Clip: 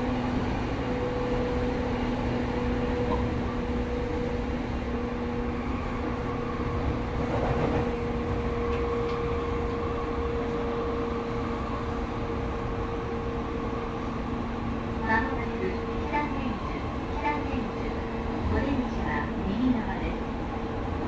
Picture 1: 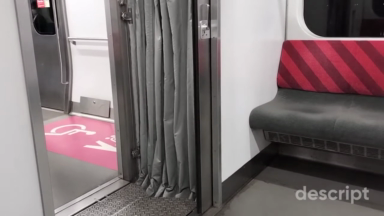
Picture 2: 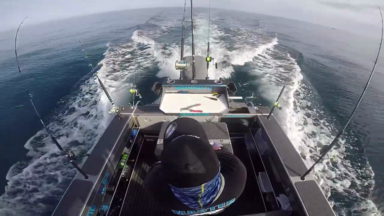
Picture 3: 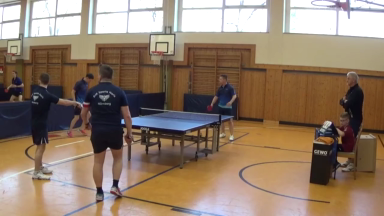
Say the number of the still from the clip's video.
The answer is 1